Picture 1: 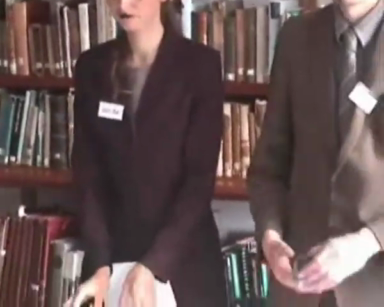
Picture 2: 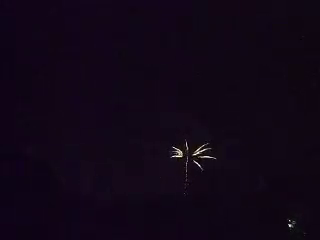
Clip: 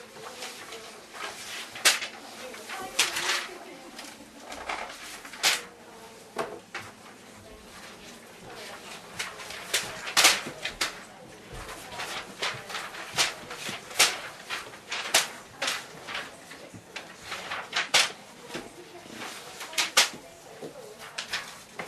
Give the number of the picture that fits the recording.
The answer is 1